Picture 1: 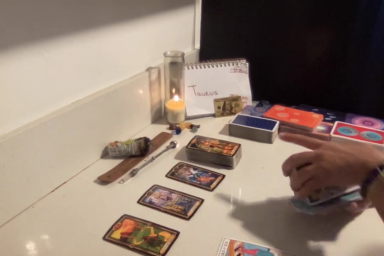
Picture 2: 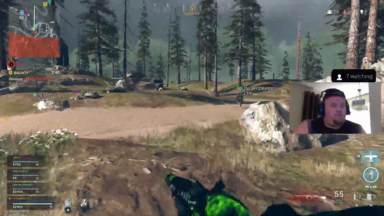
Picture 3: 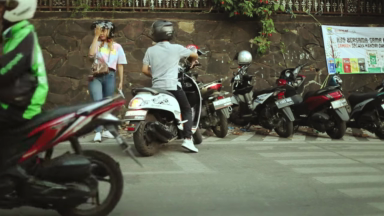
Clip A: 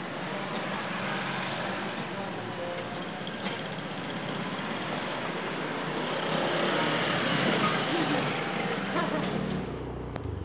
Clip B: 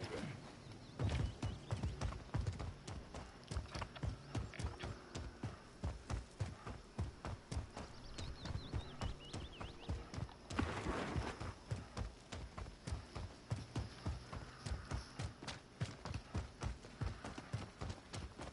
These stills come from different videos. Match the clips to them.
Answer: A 3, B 2